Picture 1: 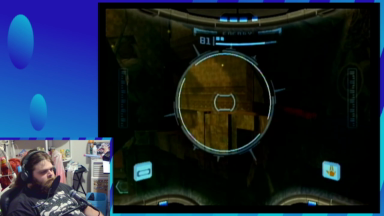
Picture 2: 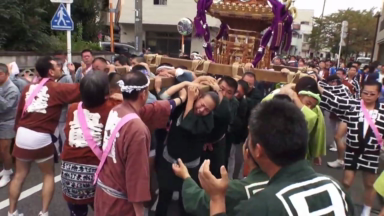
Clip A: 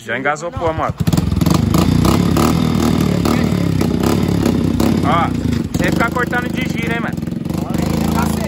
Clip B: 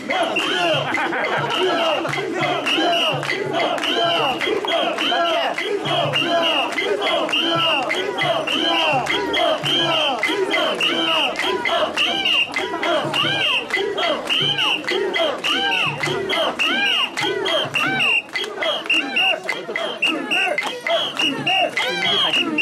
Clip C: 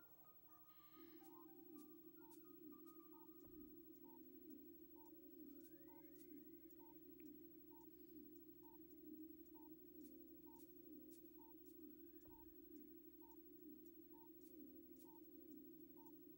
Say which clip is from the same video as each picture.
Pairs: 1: C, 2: B